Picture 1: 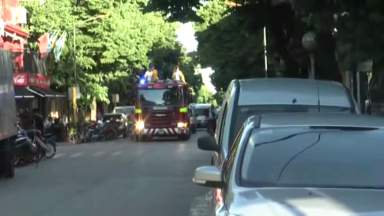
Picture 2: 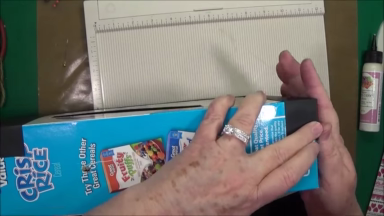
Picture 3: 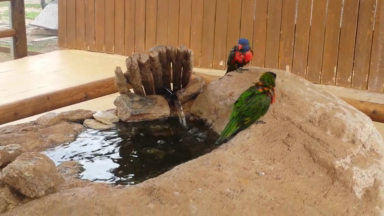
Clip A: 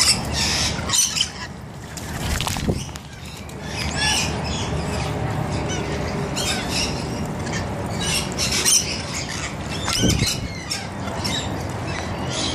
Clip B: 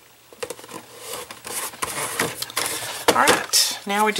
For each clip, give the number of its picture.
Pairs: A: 3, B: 2